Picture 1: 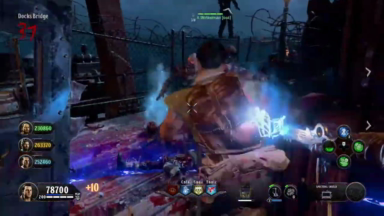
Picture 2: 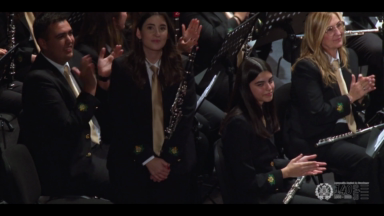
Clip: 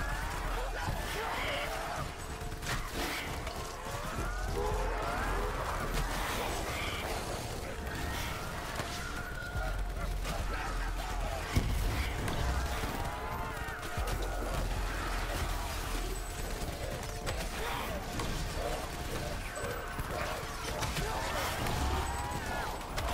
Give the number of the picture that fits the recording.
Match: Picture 1